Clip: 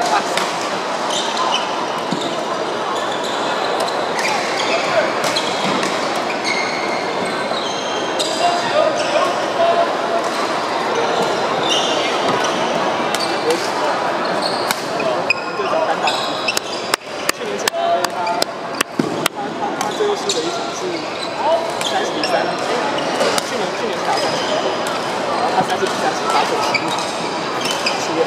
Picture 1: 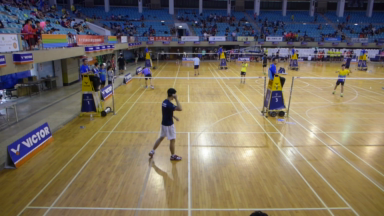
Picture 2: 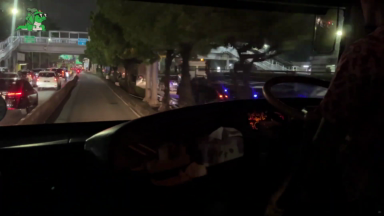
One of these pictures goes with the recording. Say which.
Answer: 1